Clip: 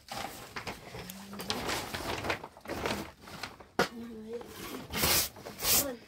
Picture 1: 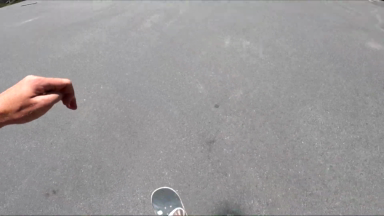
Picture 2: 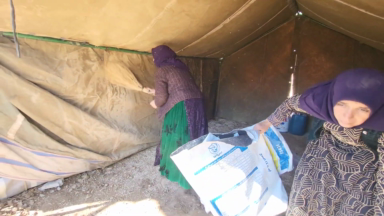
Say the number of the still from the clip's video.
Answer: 2